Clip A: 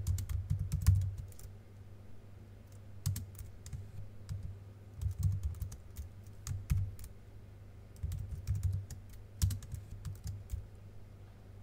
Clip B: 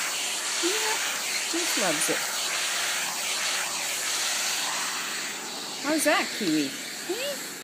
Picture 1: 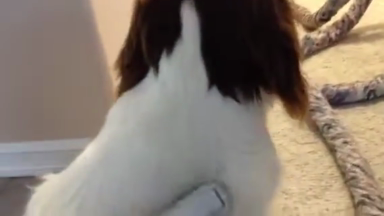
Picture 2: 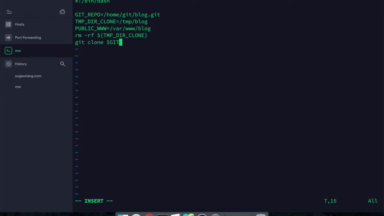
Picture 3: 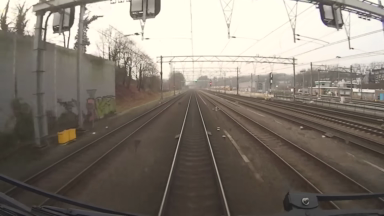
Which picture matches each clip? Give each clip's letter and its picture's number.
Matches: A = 2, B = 1